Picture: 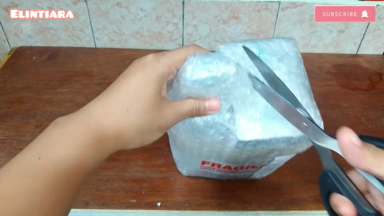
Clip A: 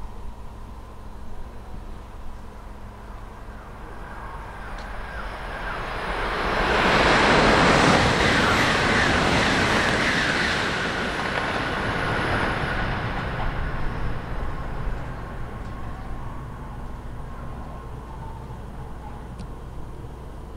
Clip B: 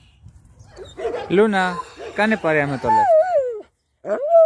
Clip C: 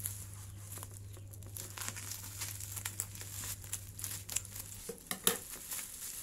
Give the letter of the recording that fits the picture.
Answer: C